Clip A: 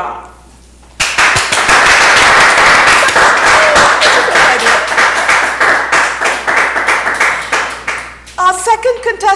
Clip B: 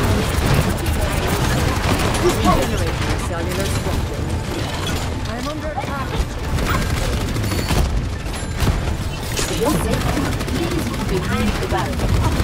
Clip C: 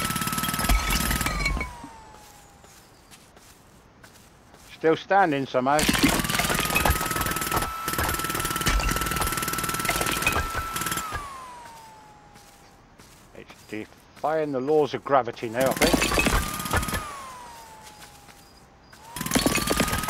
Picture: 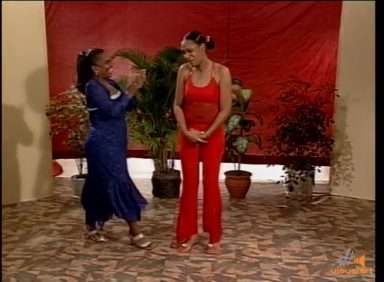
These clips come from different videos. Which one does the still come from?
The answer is A